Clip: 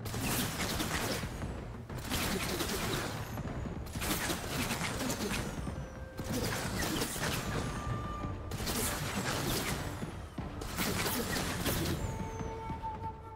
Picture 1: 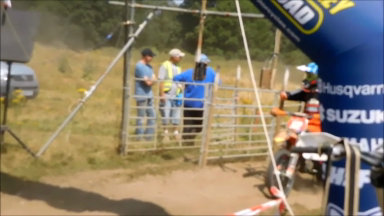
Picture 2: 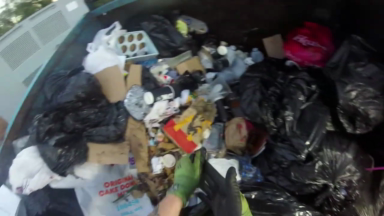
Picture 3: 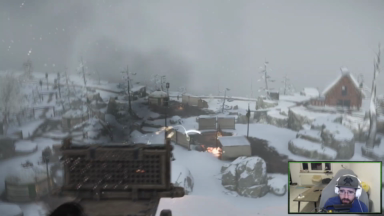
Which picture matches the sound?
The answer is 3